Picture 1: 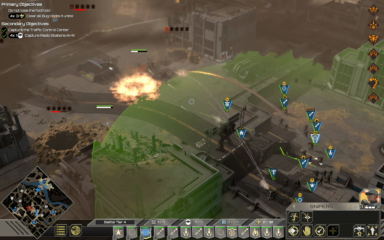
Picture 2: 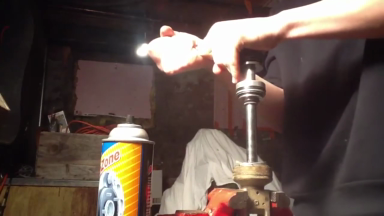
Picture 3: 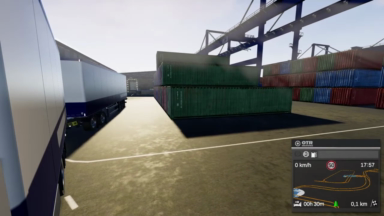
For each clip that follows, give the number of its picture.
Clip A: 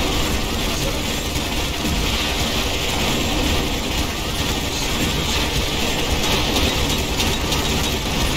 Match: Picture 1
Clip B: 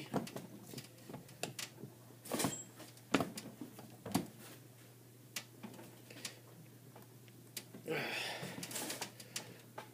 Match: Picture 2